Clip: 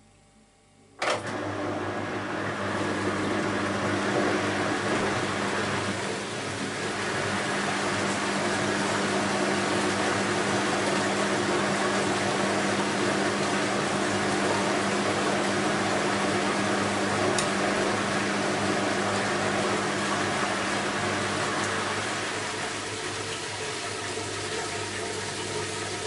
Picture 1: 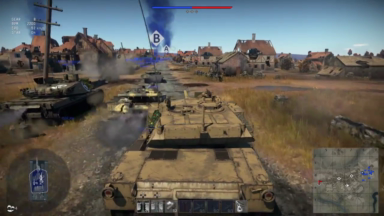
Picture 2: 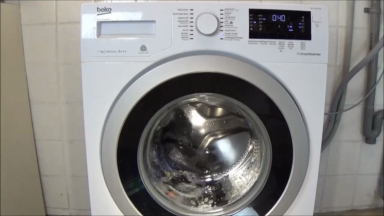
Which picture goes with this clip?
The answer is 2